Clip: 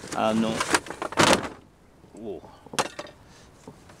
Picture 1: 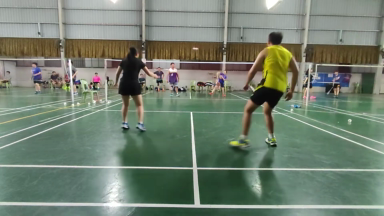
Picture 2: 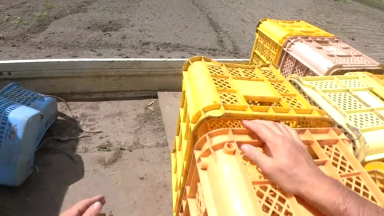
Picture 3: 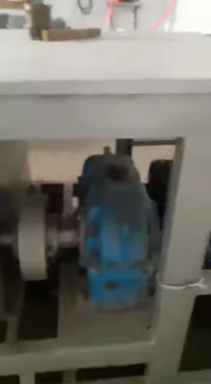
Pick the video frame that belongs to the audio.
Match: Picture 2